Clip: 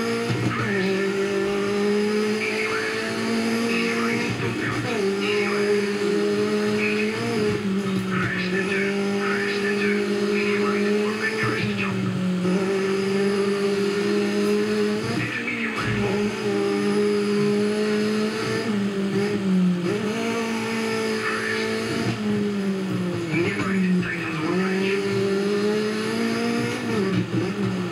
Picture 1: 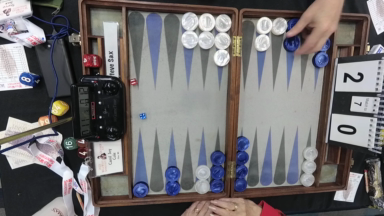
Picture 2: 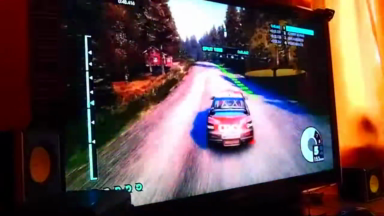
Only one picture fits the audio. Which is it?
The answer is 2